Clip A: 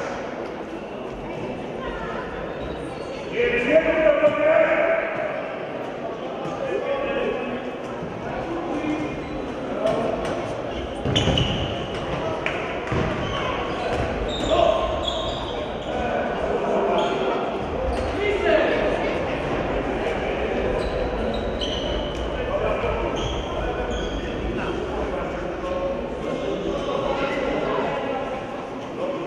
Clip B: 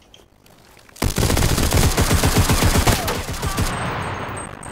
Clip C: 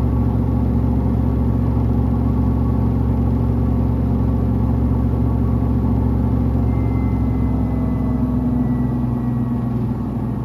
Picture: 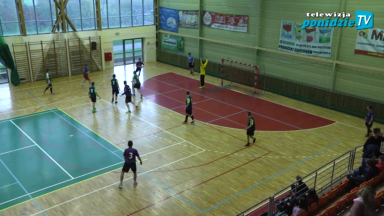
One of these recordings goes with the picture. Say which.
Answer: A